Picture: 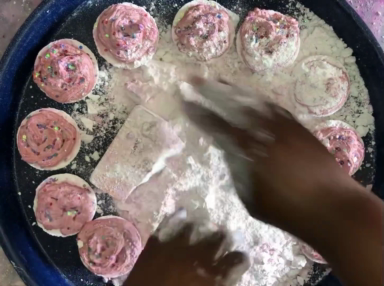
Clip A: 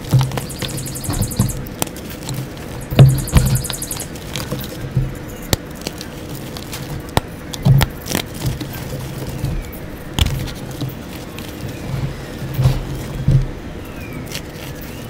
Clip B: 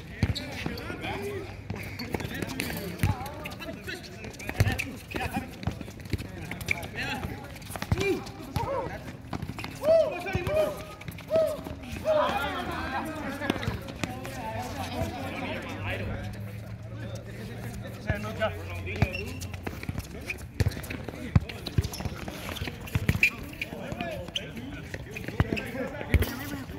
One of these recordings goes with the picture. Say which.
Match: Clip A